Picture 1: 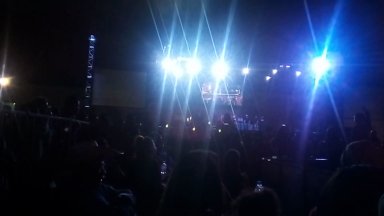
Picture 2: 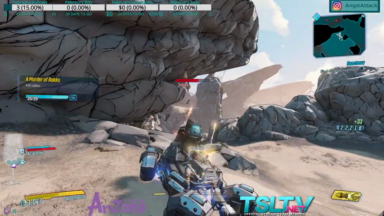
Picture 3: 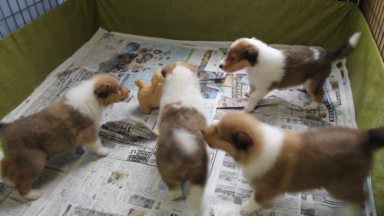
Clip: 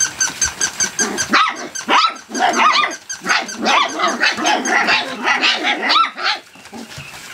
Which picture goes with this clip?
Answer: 3